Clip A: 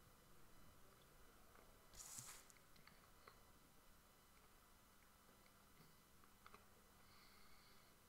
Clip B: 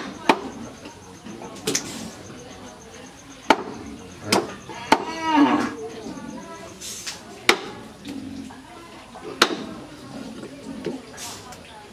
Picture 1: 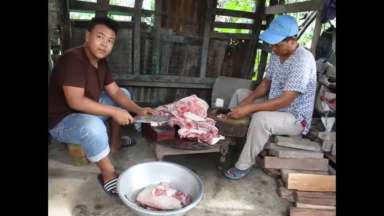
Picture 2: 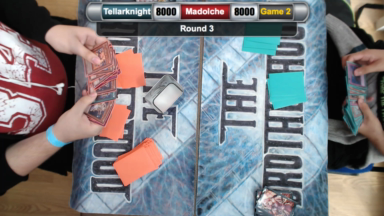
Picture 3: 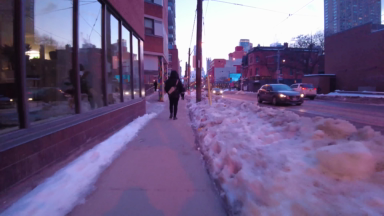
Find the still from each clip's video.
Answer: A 2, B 1